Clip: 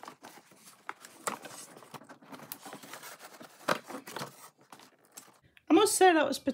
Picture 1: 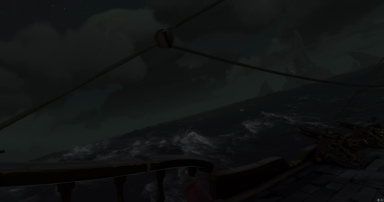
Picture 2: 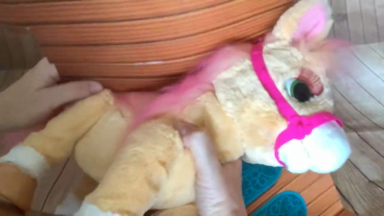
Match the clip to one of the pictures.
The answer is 2